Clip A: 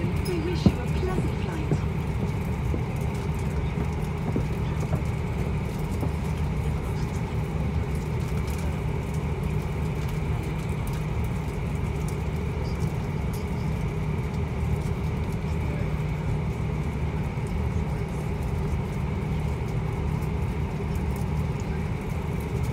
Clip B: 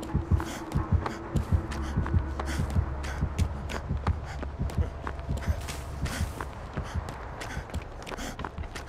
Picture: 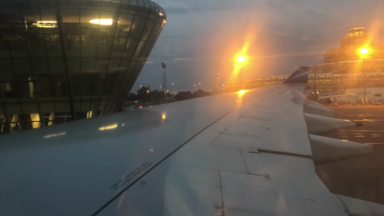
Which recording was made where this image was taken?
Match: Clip A